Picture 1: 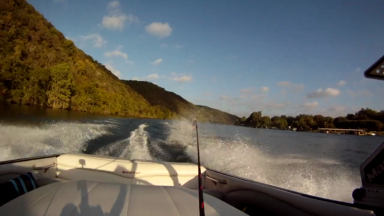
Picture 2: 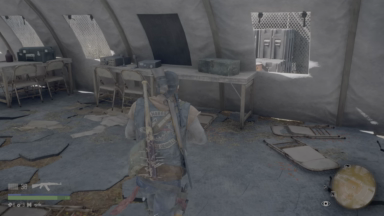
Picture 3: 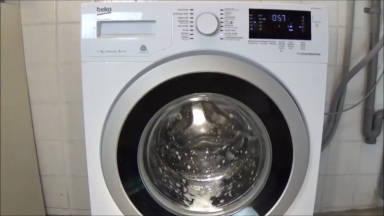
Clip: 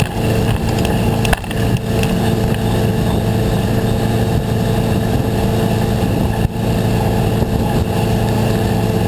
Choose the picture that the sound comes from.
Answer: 1